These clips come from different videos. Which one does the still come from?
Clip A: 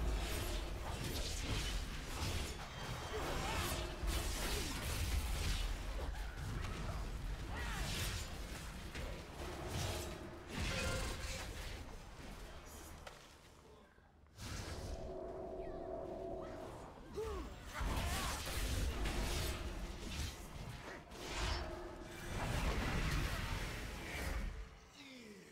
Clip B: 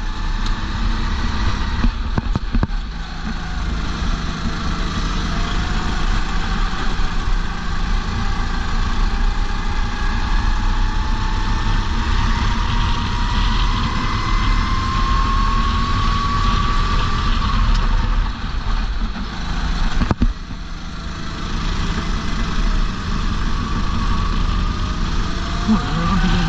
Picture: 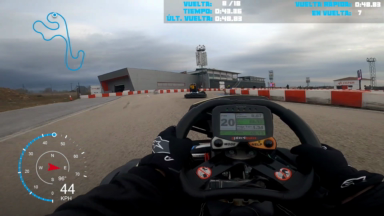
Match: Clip B